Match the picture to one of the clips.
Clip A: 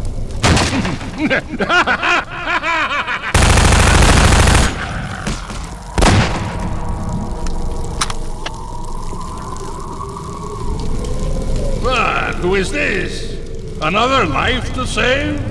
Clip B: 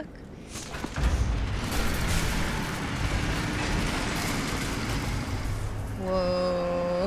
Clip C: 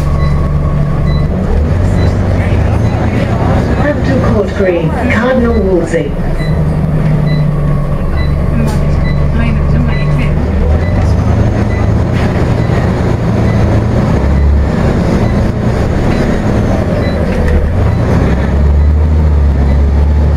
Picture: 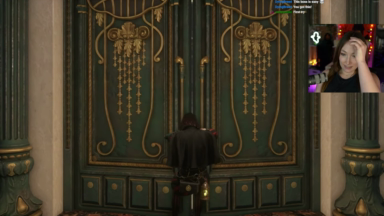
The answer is B